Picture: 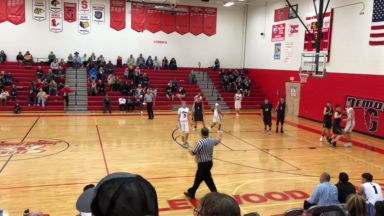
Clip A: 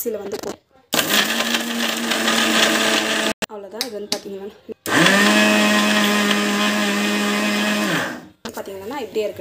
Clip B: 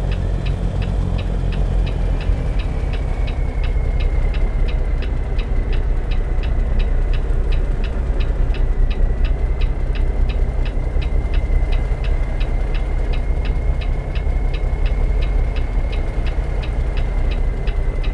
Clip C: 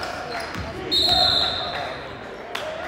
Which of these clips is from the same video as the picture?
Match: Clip C